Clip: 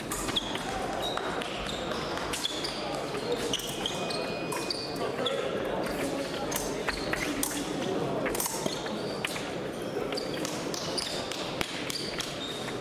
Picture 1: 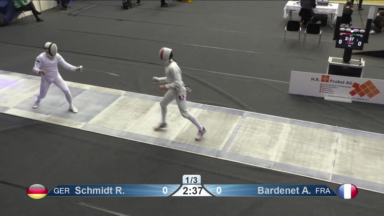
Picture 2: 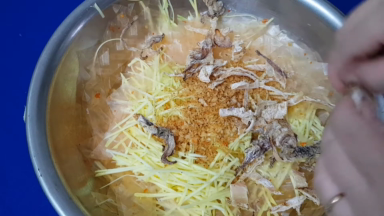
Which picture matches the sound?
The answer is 1